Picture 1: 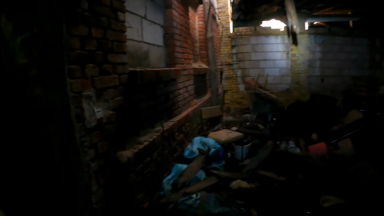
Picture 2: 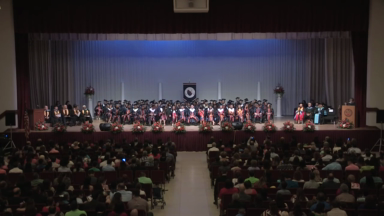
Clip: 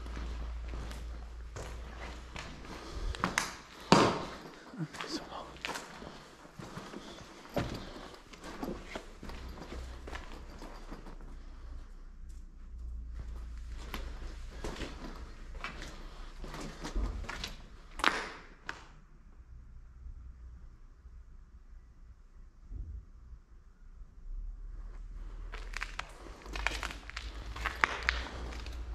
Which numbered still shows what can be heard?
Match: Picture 1